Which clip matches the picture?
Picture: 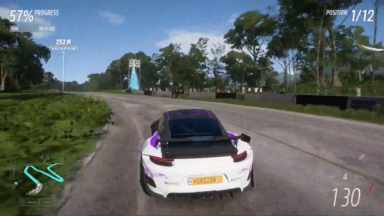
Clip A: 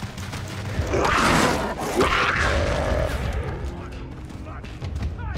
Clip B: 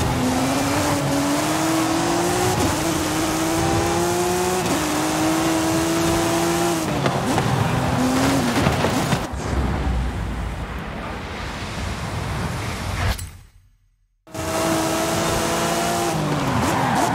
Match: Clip B